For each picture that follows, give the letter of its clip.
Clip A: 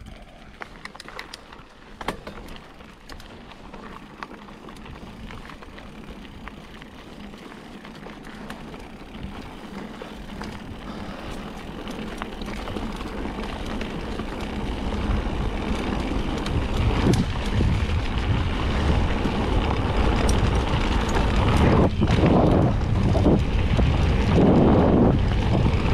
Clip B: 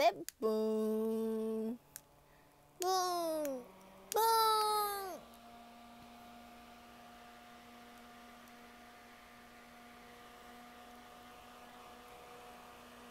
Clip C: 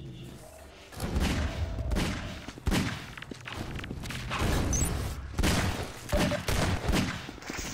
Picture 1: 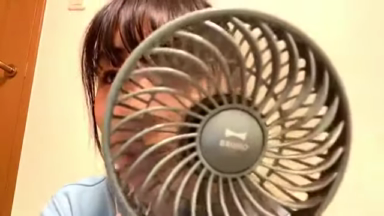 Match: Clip B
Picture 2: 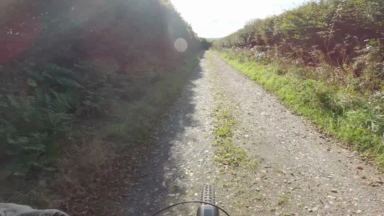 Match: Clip A